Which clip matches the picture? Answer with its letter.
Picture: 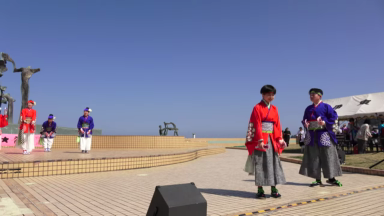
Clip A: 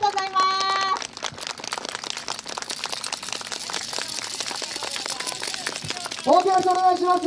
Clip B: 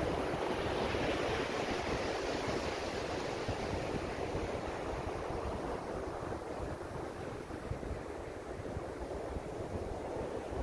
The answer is A